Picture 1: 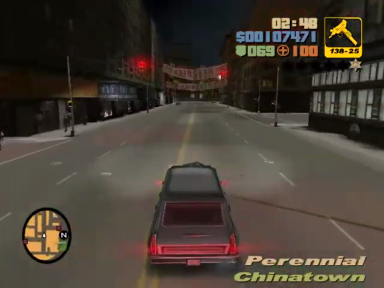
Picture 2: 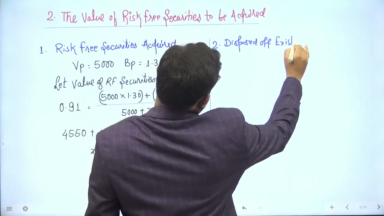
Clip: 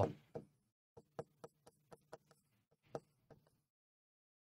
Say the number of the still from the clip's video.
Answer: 2